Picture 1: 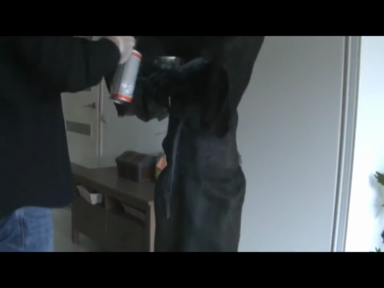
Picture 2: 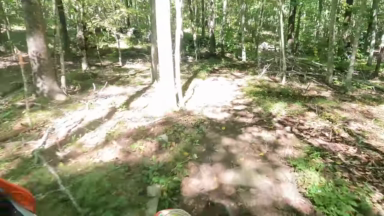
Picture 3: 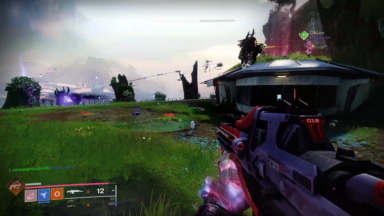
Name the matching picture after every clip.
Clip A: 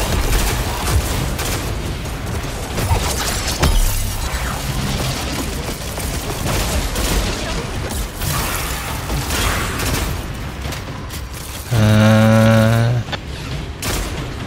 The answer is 3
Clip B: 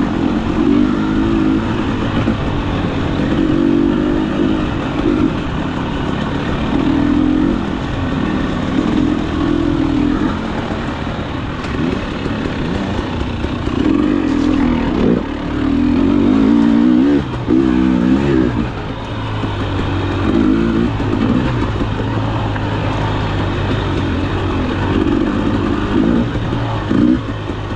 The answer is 2